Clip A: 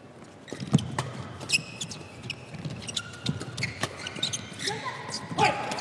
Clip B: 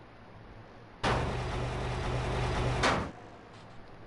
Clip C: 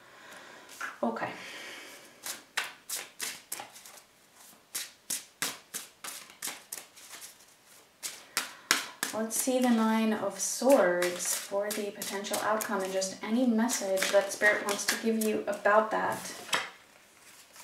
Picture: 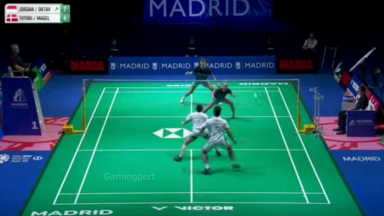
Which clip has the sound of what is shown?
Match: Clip A